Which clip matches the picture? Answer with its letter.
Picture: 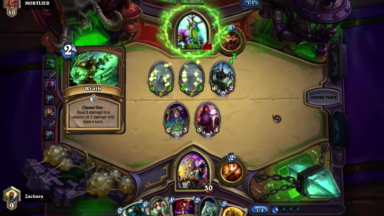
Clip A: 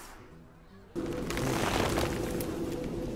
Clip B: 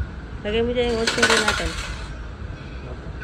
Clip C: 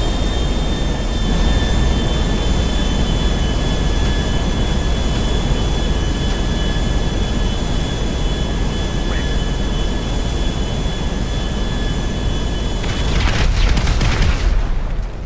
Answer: A